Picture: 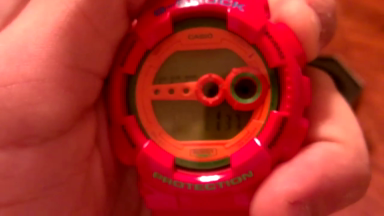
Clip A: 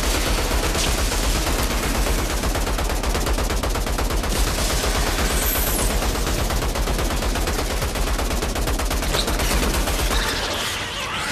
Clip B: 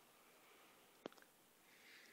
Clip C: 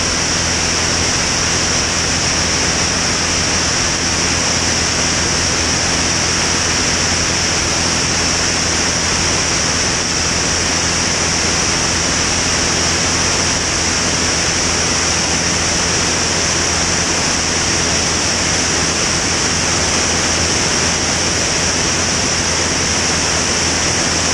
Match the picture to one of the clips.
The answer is B